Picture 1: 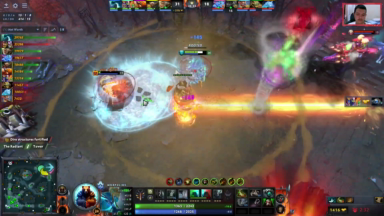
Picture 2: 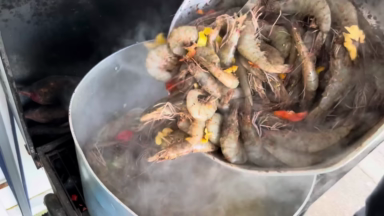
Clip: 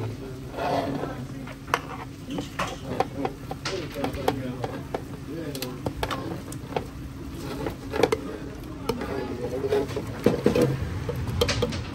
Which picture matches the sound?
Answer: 2